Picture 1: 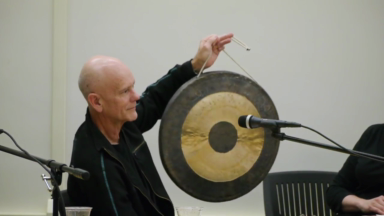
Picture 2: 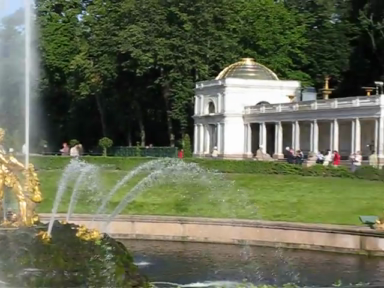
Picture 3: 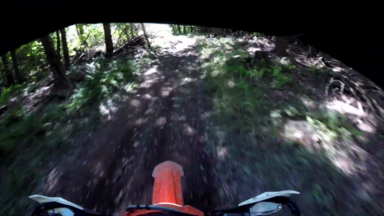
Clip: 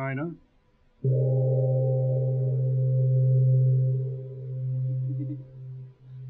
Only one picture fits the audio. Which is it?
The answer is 1